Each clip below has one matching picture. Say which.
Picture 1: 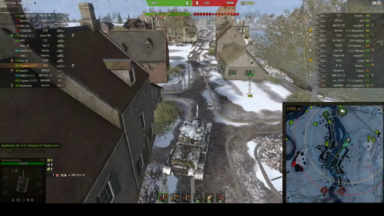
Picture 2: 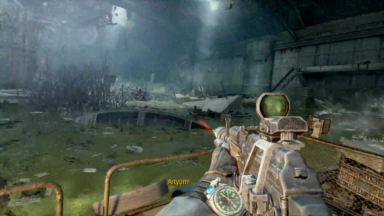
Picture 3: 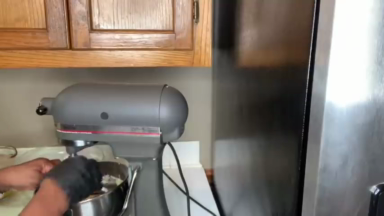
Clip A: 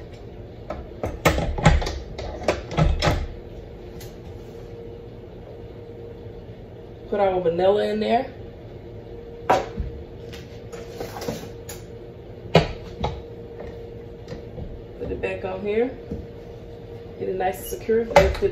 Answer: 3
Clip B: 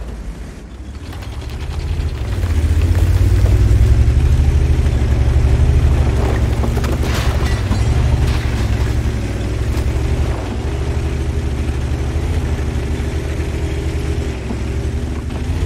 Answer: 1